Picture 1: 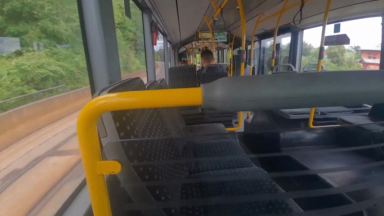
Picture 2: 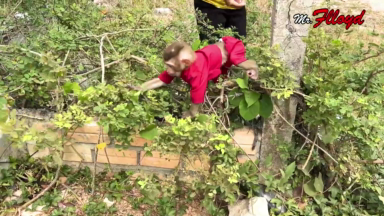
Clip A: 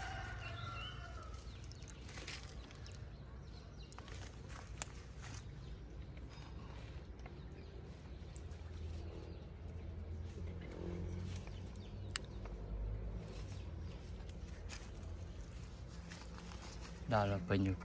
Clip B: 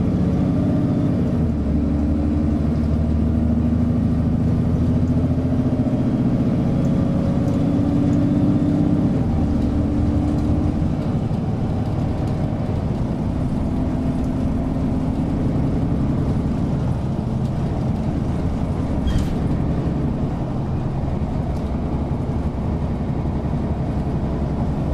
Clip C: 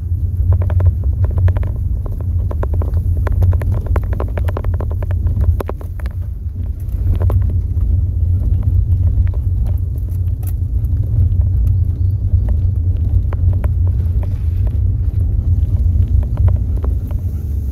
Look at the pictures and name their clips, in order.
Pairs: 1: B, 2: A